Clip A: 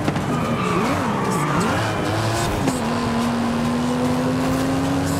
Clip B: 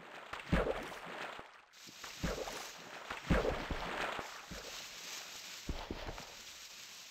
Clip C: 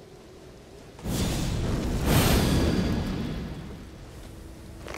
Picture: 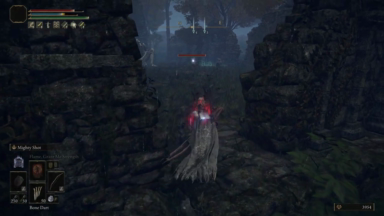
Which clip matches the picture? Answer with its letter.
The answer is C